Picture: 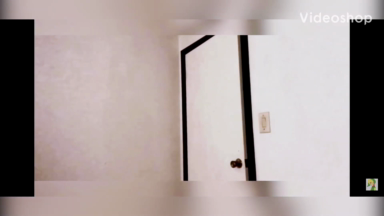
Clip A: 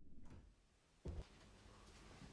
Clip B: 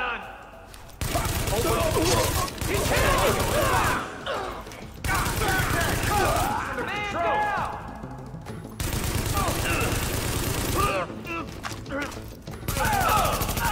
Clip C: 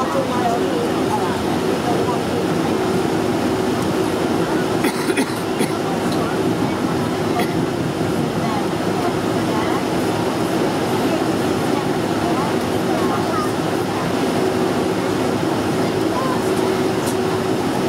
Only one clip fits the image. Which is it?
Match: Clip A